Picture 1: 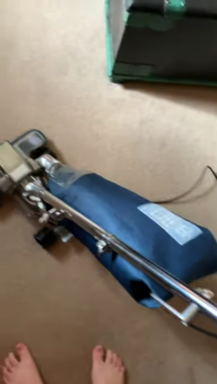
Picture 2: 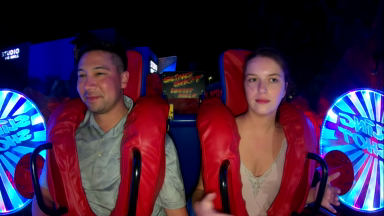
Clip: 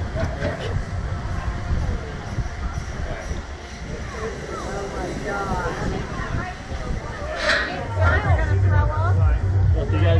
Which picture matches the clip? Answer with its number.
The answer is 2